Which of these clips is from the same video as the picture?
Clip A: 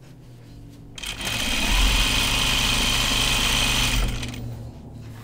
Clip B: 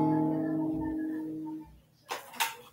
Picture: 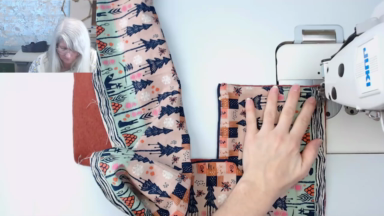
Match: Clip A